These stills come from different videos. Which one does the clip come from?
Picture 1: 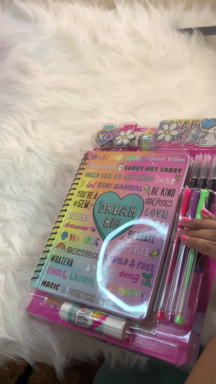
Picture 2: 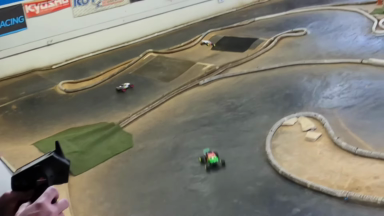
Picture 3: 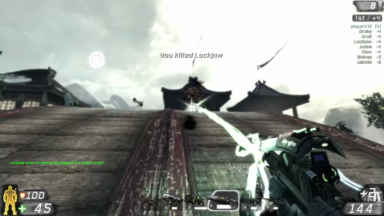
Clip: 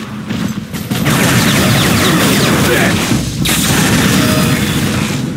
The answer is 3